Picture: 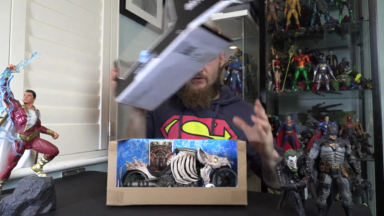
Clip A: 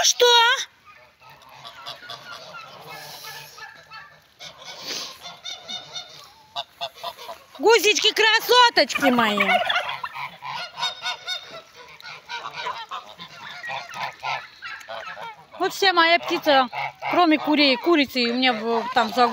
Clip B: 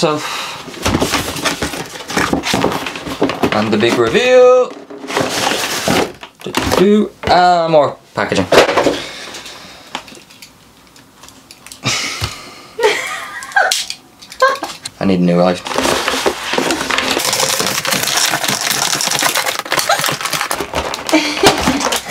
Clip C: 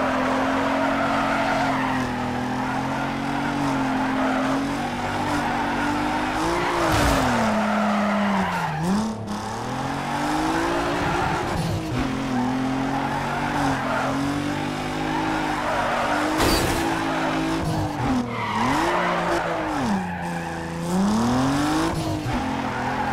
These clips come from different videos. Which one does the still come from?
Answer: B